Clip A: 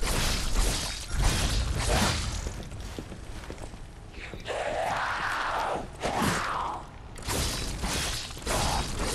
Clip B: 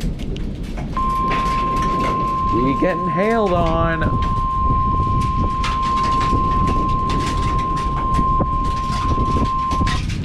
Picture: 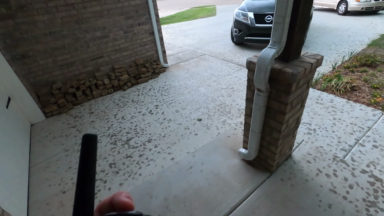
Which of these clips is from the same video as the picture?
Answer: B